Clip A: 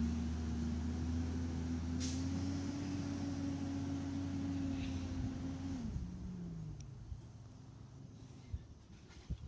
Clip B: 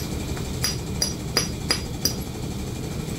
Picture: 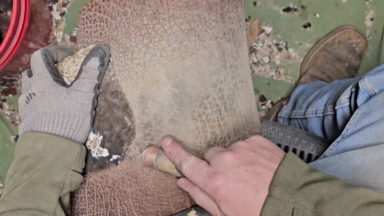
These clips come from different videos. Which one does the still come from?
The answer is B